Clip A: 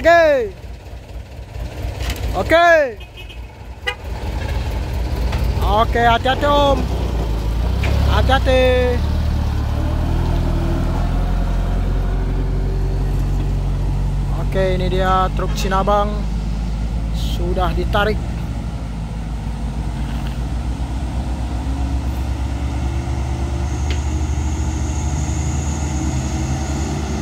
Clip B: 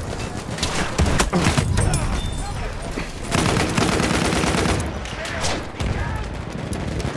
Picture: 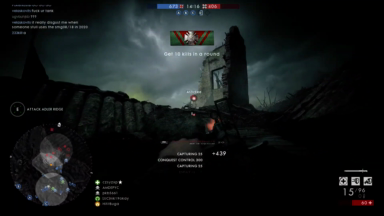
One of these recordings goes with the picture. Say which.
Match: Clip B